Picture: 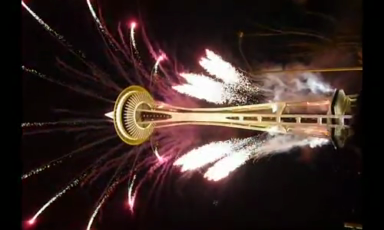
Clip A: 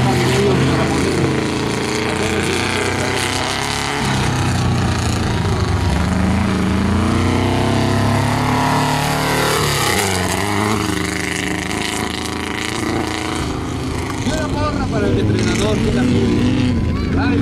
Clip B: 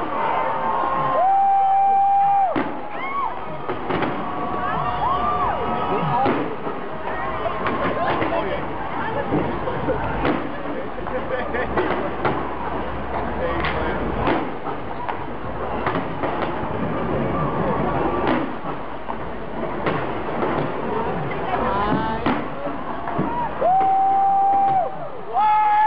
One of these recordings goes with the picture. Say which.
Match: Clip B